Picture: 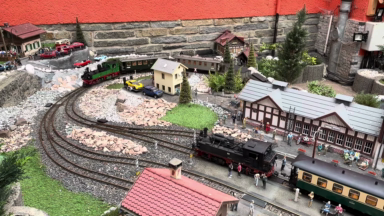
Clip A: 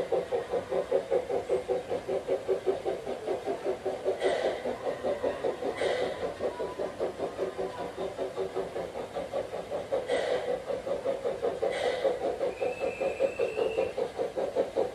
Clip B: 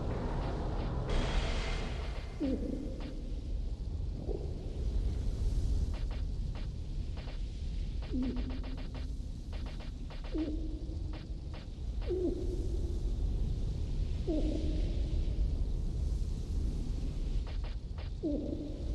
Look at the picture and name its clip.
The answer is A